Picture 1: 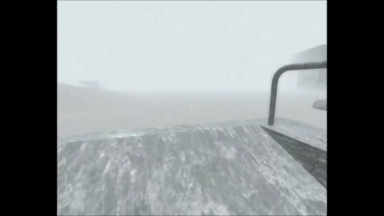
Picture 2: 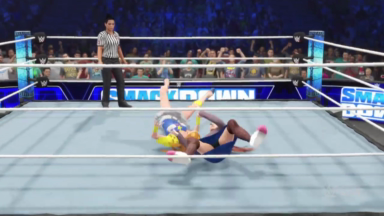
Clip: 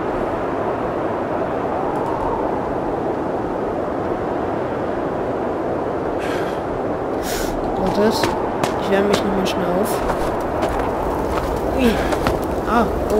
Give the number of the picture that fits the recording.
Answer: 1